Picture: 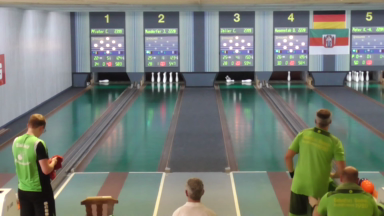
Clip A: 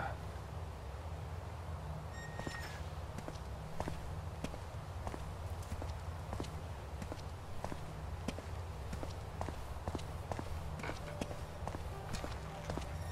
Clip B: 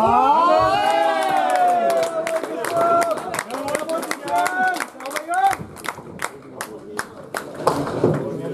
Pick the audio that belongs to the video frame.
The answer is B